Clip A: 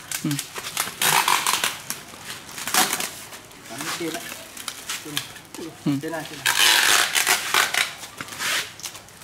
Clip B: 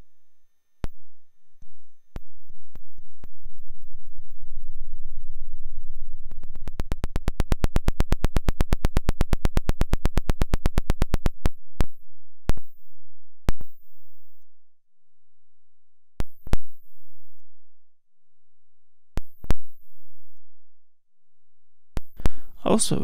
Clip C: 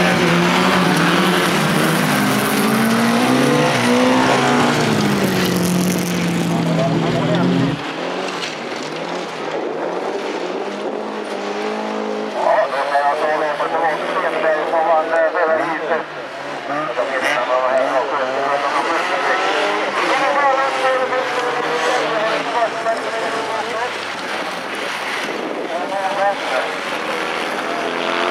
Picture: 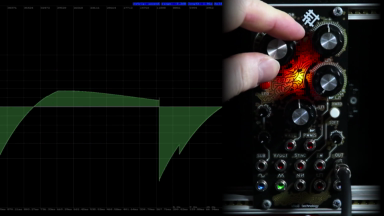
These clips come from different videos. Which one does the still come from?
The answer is B